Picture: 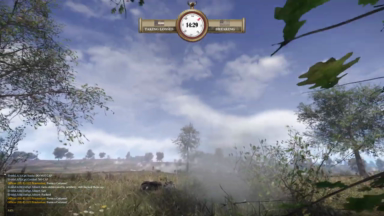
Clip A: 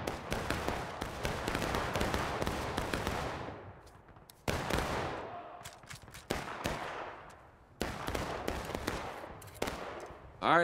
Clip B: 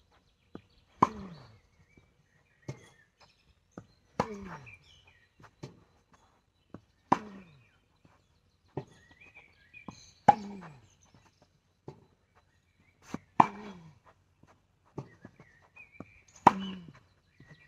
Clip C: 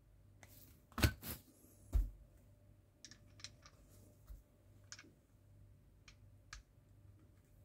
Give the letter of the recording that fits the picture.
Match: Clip A